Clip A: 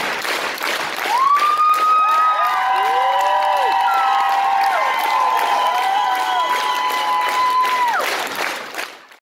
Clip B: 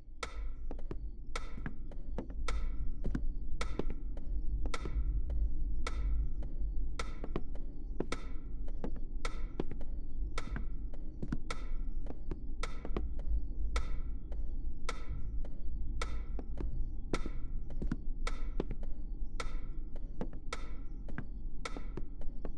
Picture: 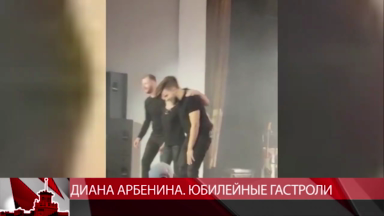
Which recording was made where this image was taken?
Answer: A